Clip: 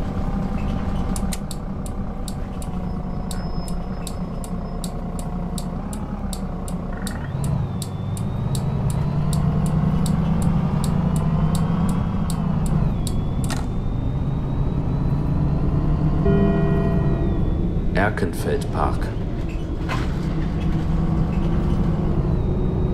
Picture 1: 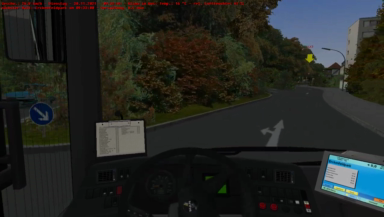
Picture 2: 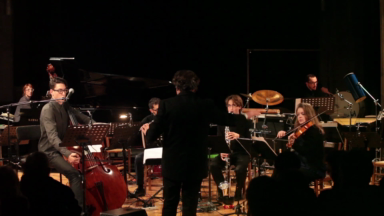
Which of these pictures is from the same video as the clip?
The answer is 1